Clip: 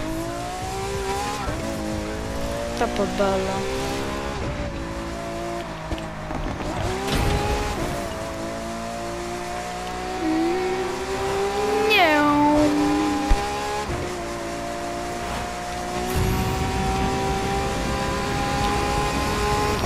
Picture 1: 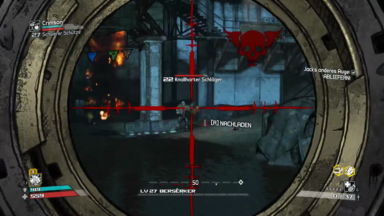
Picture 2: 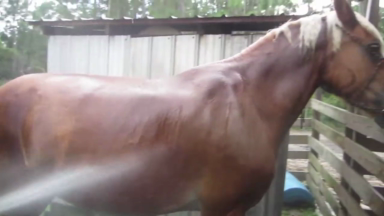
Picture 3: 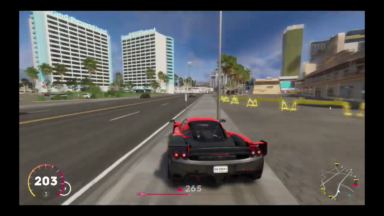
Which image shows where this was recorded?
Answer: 3